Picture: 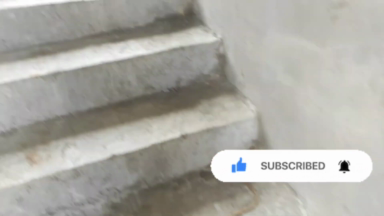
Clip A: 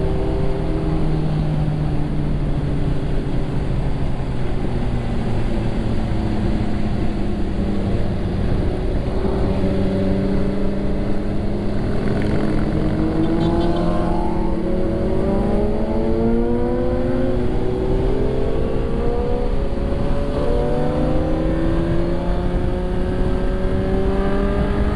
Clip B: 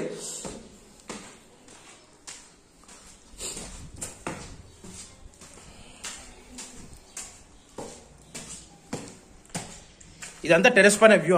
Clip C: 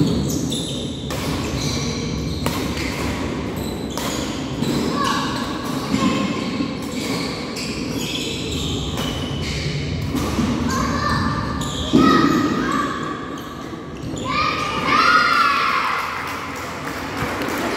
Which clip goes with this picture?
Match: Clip B